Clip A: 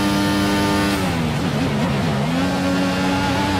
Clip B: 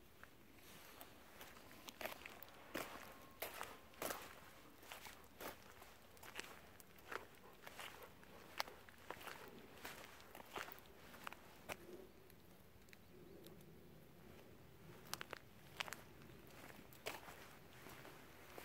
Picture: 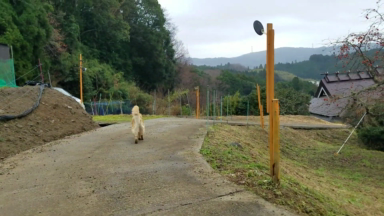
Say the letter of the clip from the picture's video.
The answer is B